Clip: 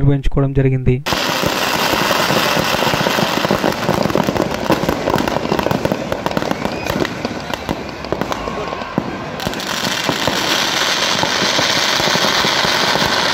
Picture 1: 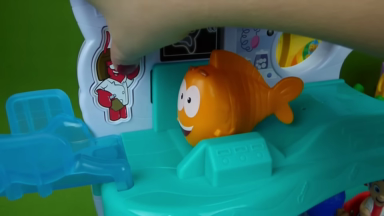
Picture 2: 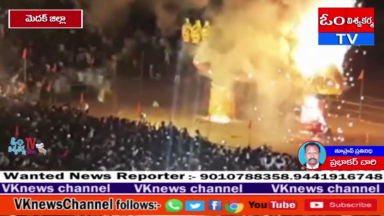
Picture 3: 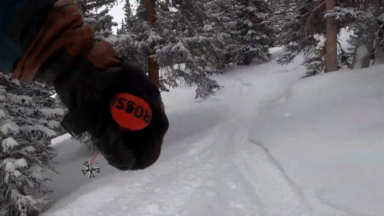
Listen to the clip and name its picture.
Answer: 2